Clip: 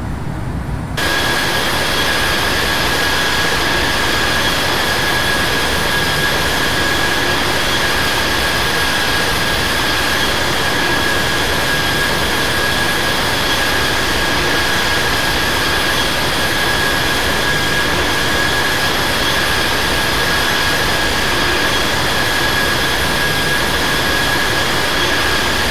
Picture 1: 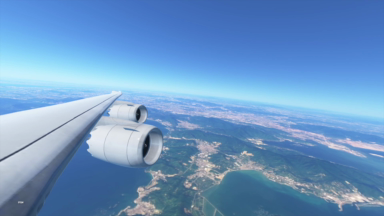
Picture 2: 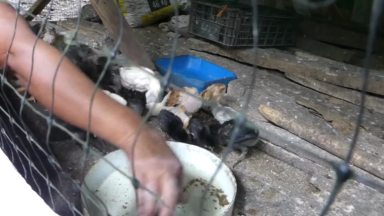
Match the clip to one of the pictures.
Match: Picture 1